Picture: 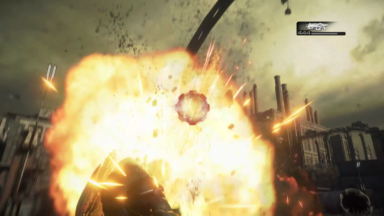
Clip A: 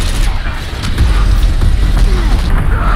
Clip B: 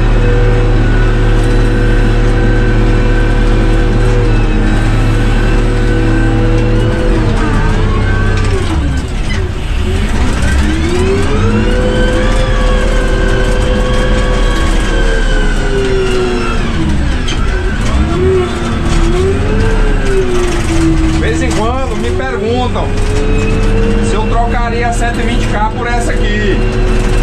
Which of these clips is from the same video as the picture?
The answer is A